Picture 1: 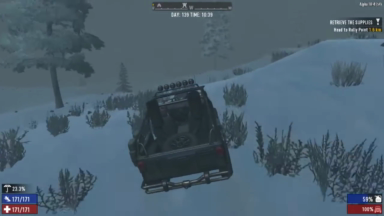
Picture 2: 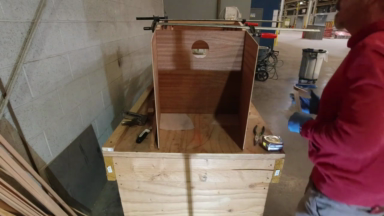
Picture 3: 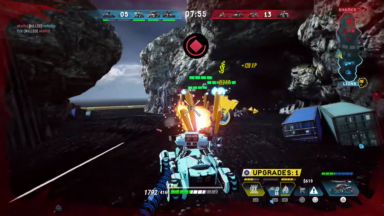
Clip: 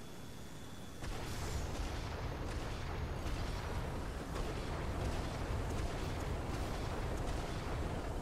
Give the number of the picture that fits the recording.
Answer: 3